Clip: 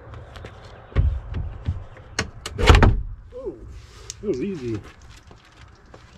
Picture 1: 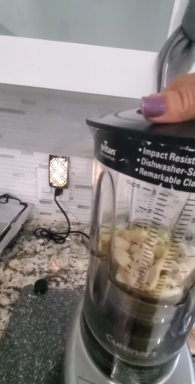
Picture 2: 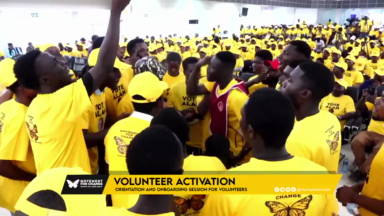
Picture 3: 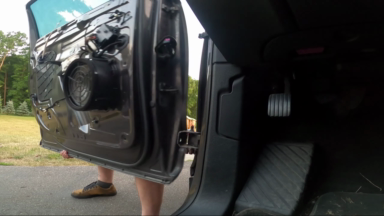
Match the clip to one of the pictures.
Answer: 3